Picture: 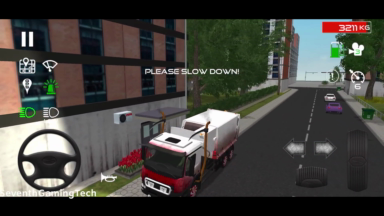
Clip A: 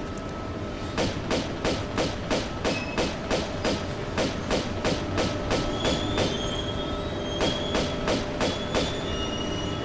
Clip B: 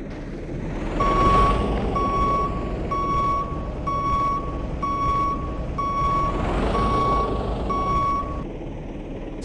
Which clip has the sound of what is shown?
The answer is B